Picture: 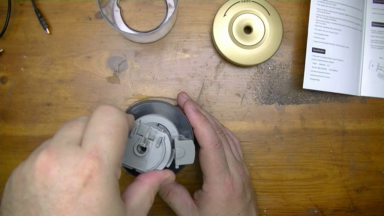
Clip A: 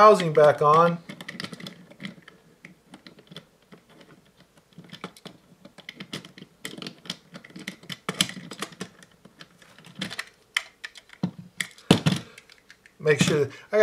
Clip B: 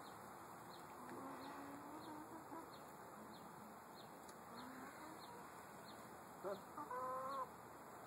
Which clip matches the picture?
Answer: A